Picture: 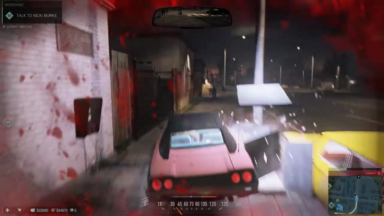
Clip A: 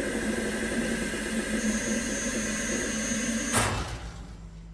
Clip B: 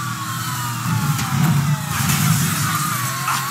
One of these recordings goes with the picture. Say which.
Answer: B